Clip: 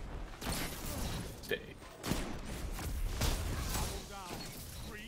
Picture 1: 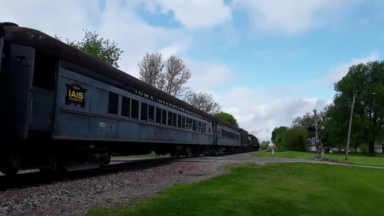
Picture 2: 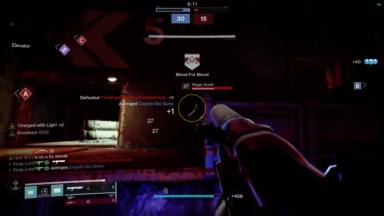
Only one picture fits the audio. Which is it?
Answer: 2